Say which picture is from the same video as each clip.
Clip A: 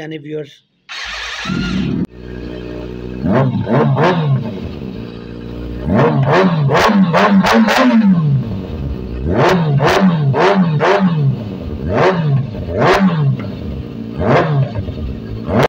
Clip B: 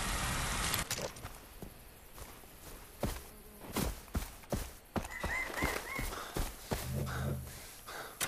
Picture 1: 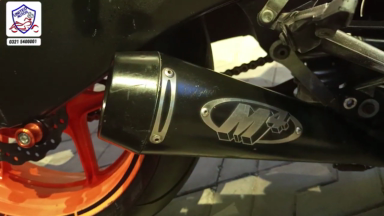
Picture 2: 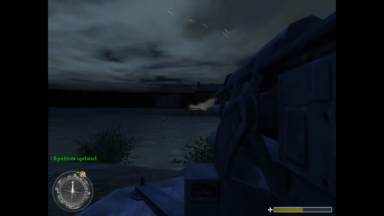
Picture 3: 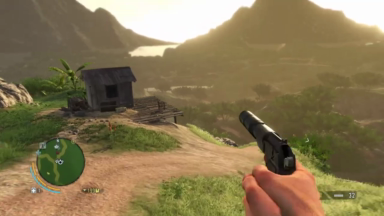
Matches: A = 1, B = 3